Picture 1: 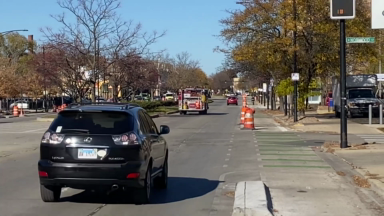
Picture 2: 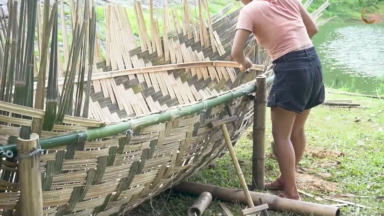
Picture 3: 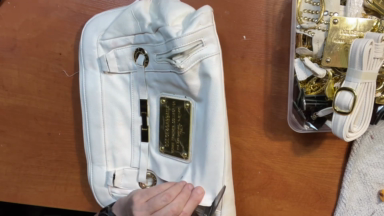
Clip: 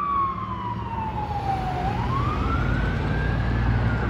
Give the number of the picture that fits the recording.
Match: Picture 1